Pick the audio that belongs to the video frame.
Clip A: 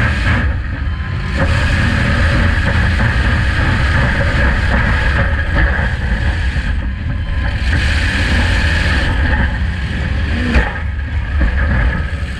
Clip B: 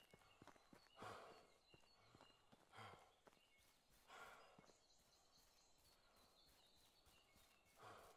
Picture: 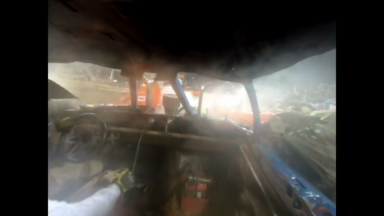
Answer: A